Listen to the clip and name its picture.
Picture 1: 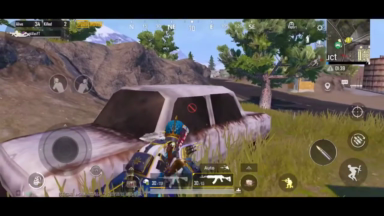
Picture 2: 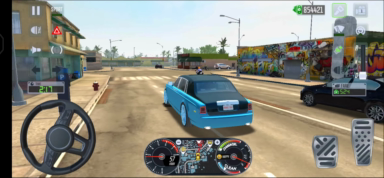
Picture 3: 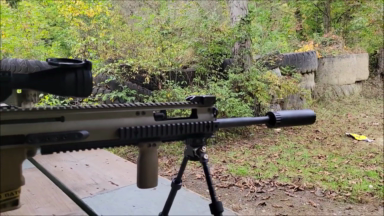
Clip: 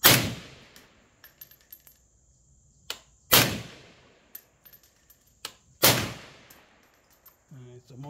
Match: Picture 3